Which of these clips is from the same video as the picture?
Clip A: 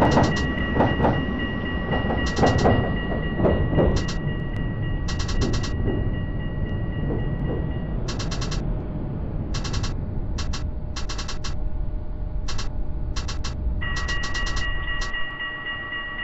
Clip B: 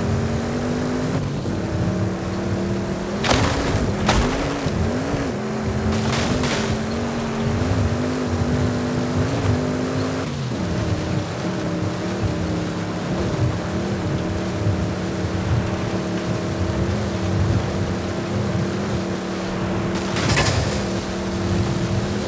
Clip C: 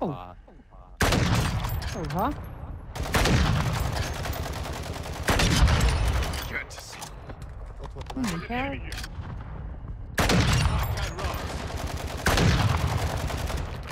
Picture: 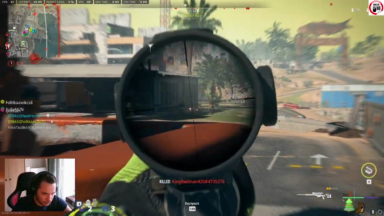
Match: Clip C